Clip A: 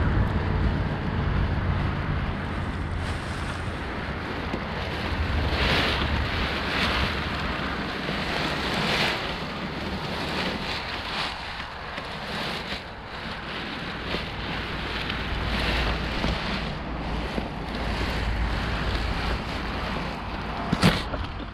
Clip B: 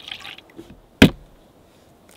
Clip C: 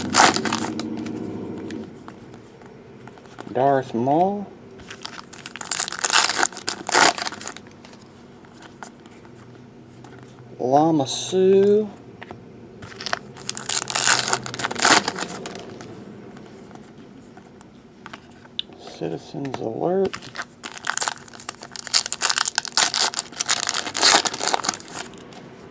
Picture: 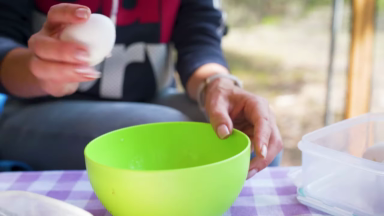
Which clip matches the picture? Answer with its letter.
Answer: B